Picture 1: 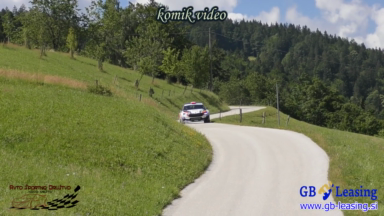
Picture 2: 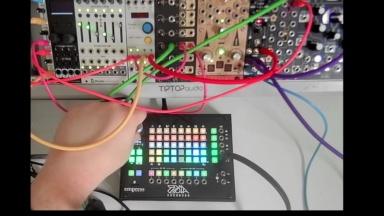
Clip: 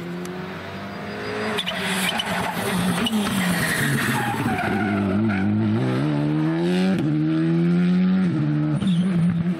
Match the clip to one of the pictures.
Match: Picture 1